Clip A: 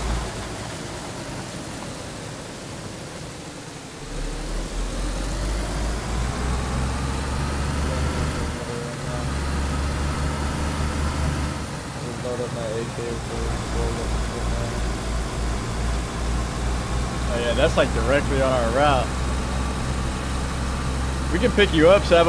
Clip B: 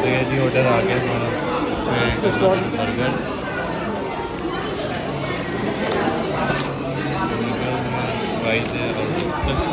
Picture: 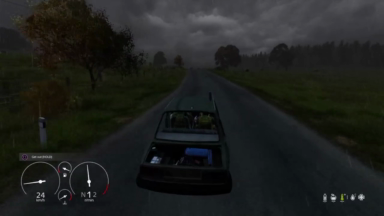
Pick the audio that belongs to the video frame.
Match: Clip A